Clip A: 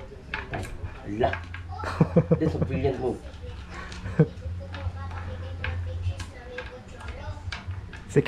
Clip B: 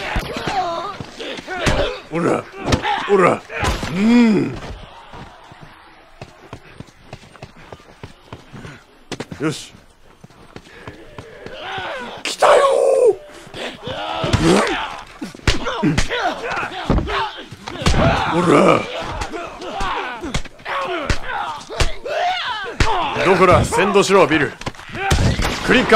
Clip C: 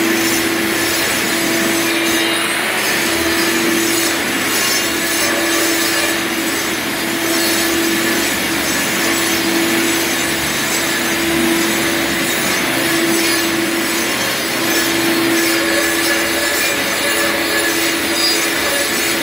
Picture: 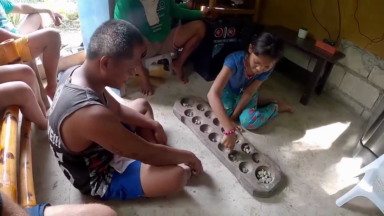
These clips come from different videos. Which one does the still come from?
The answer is A